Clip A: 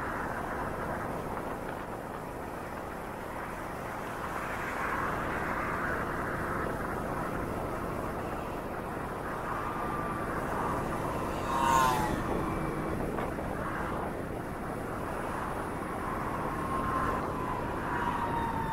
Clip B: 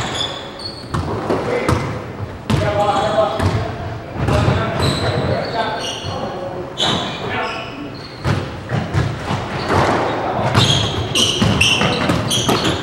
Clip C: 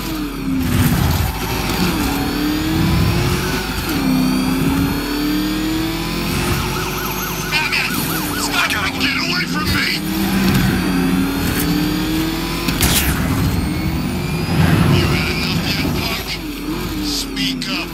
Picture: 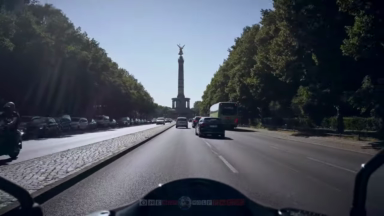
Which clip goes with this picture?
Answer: A